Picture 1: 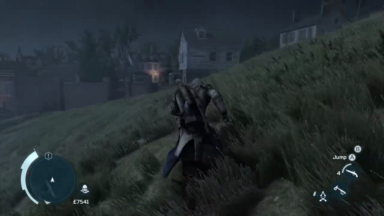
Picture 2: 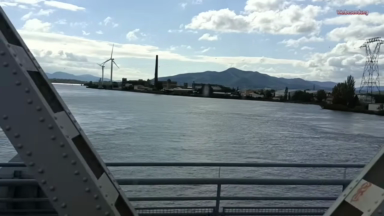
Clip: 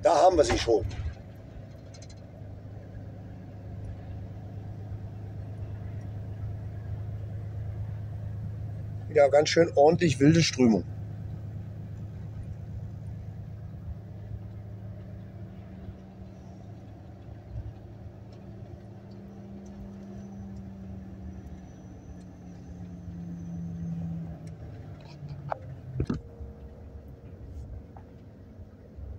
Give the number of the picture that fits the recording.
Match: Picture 2